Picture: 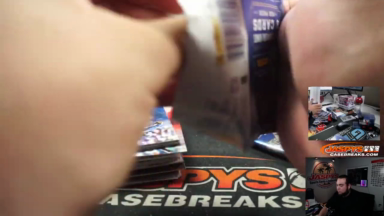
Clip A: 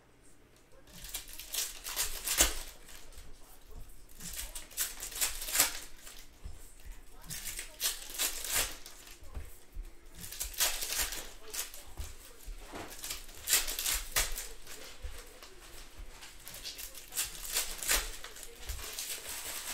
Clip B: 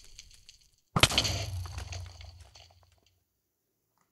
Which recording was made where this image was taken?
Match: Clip A